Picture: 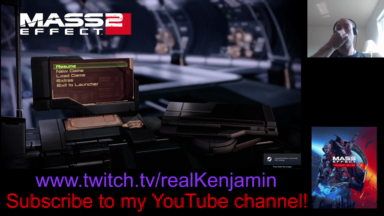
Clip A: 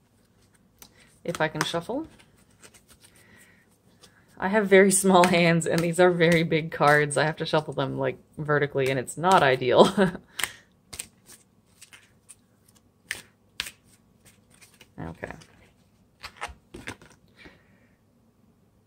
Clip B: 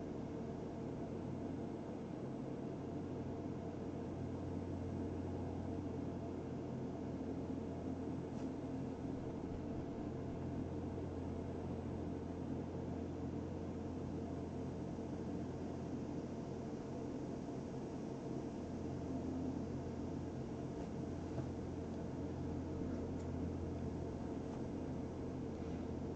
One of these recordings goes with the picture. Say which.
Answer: B